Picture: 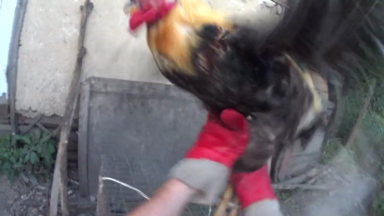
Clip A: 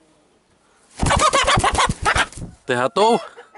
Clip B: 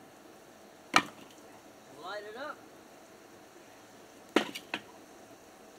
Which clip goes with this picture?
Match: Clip A